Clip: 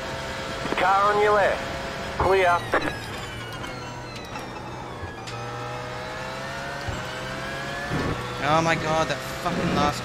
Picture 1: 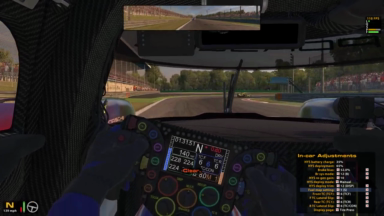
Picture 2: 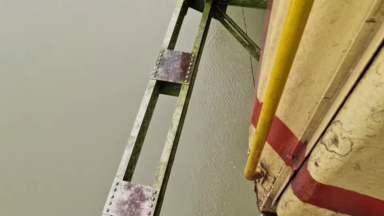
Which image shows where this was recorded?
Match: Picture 1